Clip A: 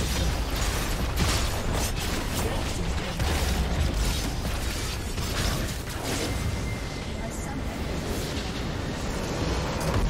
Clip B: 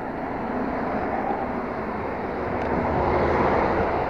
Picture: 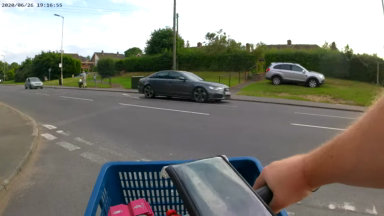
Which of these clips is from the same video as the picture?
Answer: B